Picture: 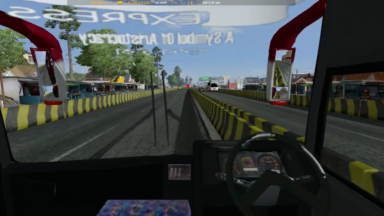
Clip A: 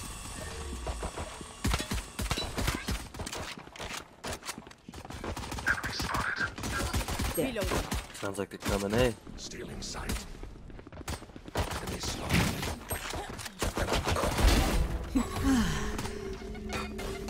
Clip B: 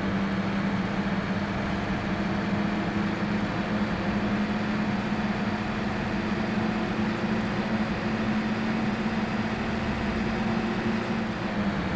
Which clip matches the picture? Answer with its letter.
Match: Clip B